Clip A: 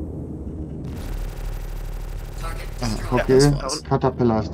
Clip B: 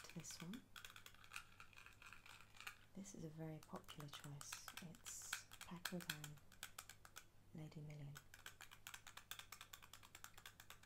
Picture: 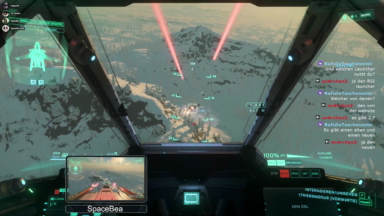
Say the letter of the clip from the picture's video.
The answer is A